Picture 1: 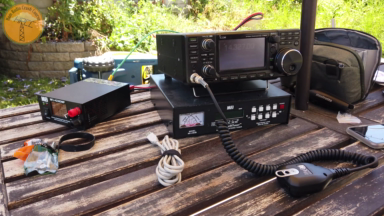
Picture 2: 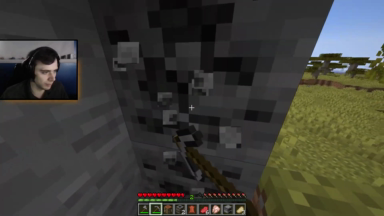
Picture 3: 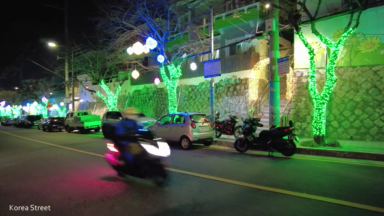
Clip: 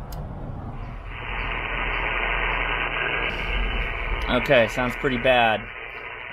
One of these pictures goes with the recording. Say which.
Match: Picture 1